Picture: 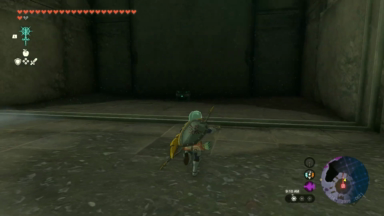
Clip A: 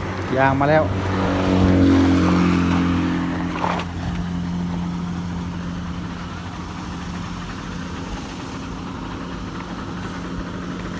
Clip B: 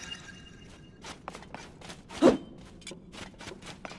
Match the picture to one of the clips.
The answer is B